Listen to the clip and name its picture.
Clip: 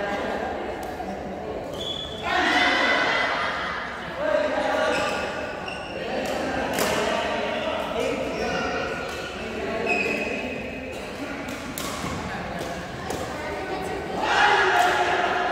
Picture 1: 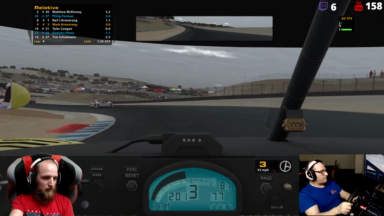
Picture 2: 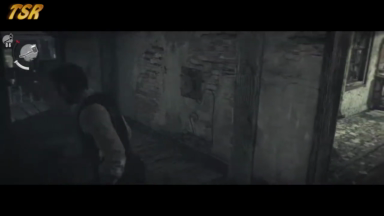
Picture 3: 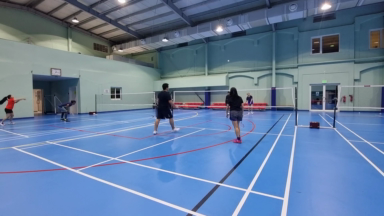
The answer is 3